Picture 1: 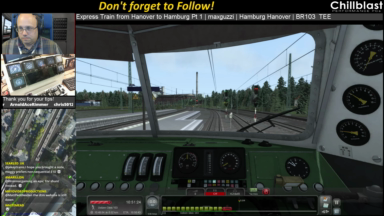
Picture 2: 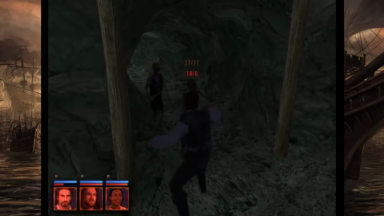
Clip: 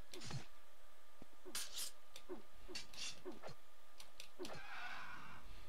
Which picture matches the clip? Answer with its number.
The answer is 2